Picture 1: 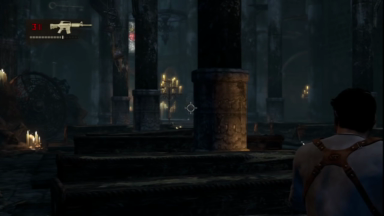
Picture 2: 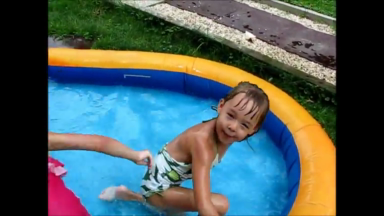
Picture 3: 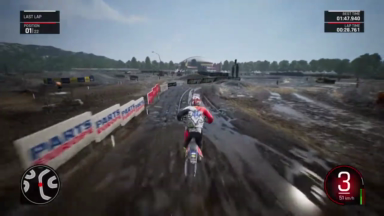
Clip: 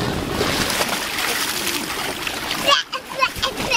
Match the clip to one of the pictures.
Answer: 2